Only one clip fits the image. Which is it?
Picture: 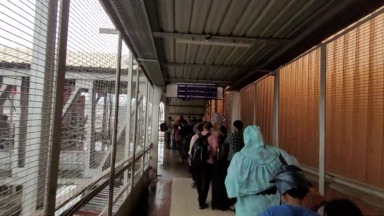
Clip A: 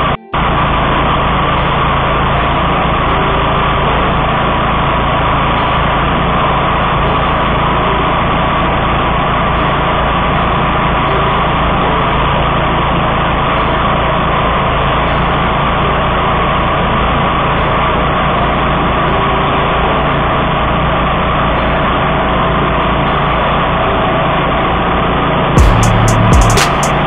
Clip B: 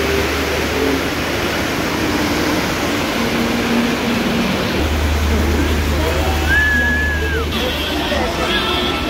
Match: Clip B